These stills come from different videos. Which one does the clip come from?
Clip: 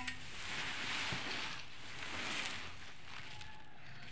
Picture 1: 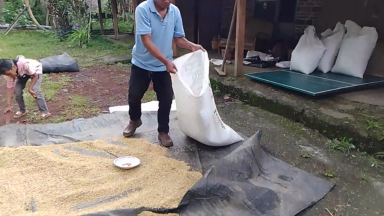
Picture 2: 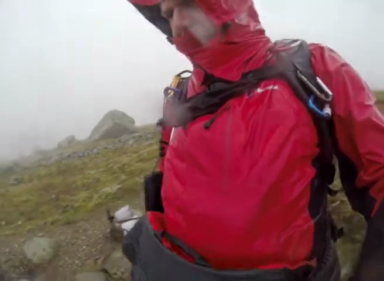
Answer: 1